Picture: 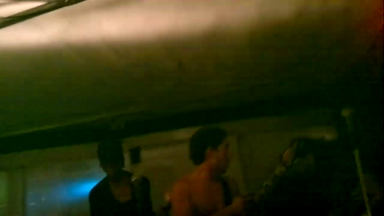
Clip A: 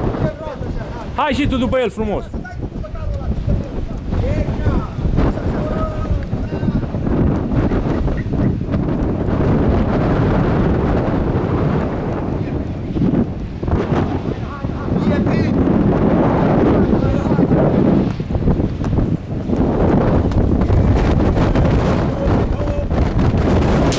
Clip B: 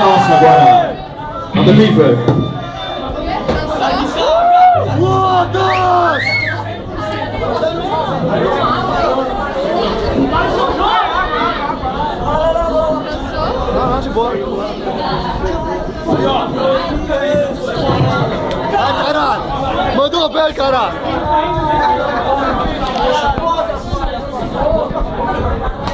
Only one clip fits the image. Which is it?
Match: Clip B